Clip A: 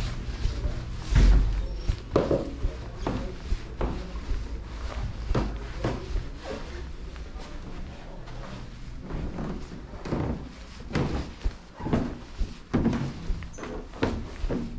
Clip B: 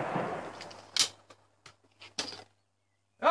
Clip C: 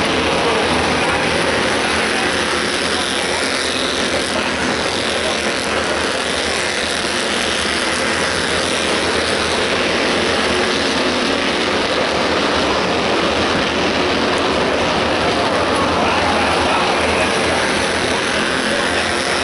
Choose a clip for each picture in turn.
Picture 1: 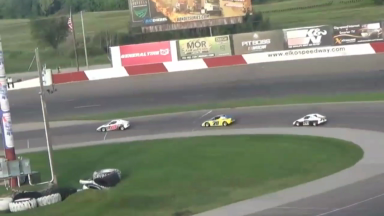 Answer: C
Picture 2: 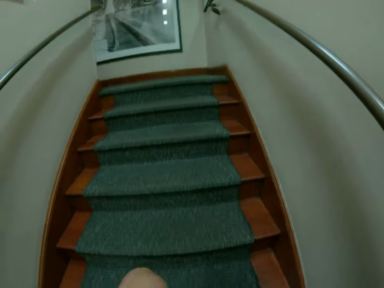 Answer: A